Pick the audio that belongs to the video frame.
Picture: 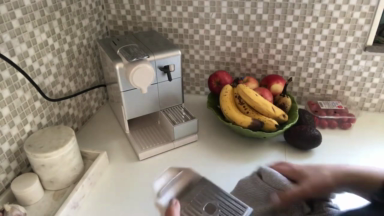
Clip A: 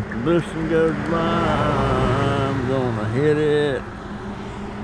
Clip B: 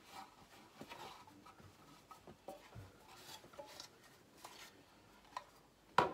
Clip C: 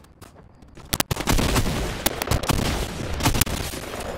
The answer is B